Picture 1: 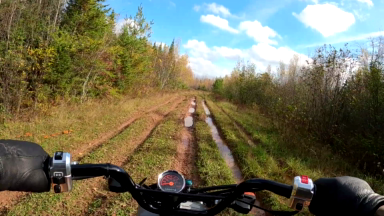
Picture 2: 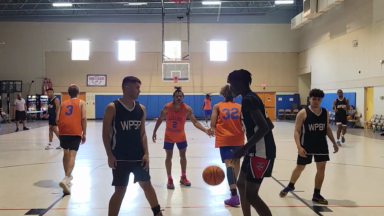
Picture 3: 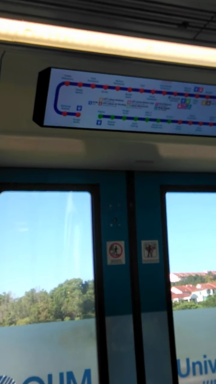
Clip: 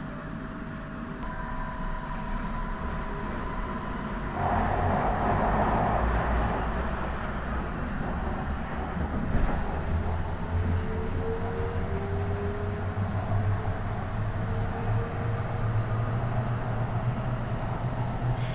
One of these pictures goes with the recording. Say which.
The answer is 3